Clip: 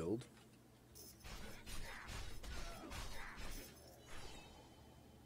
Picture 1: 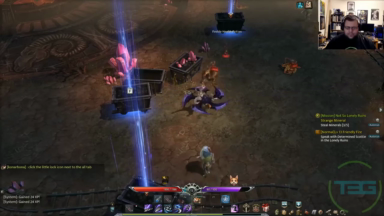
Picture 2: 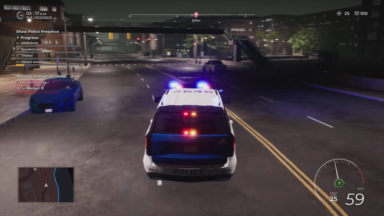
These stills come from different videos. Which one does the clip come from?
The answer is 1